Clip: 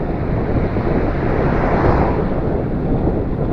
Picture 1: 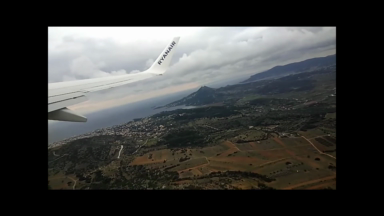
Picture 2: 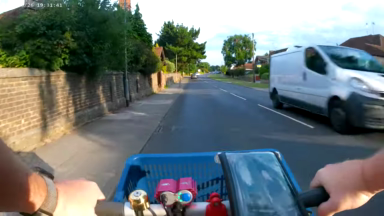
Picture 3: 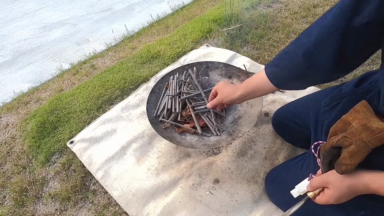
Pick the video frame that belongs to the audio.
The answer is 2